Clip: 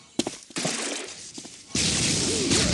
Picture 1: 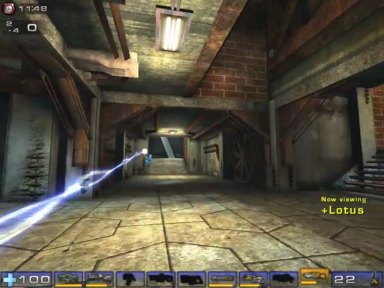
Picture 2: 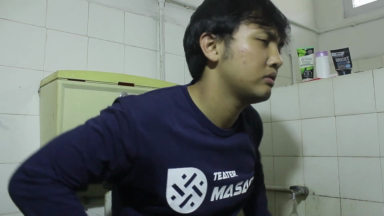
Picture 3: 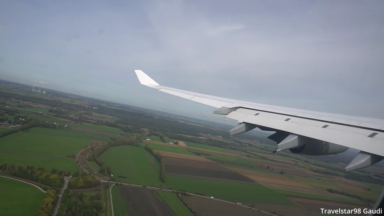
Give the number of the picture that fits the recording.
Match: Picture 1